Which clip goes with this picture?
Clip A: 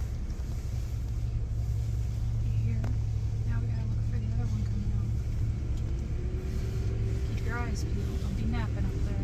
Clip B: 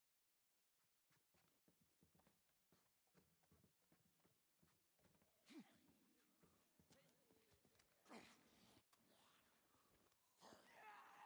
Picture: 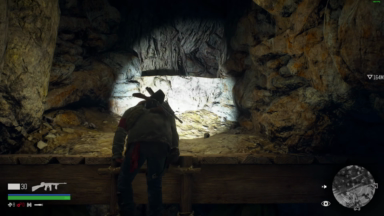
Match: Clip B